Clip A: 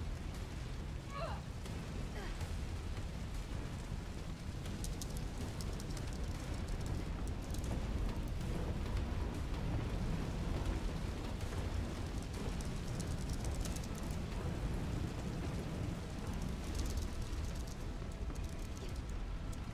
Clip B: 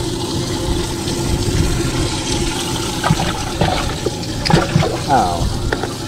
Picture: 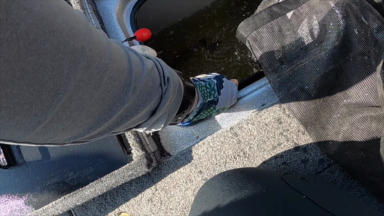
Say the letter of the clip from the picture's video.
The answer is B